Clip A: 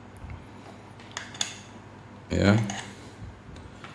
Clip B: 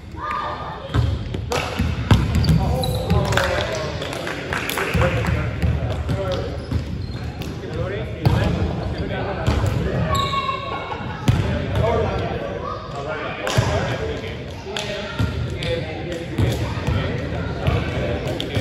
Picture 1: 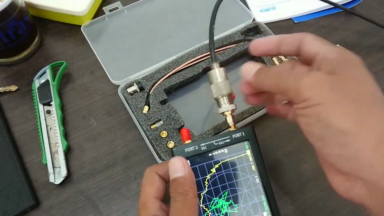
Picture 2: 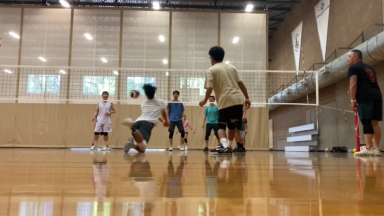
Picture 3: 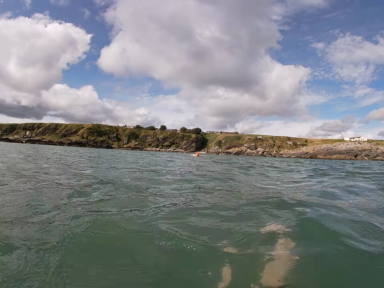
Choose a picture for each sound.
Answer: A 1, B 2